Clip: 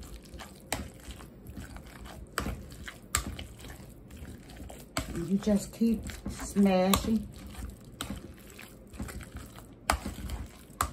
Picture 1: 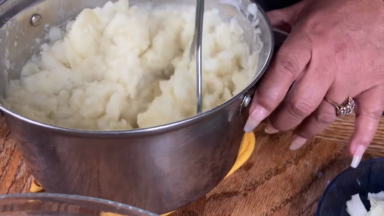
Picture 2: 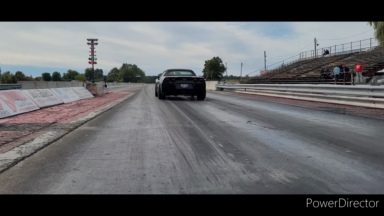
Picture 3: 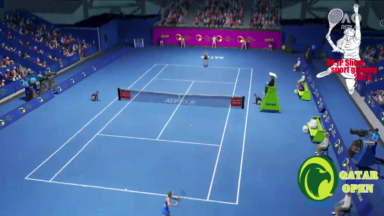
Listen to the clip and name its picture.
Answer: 1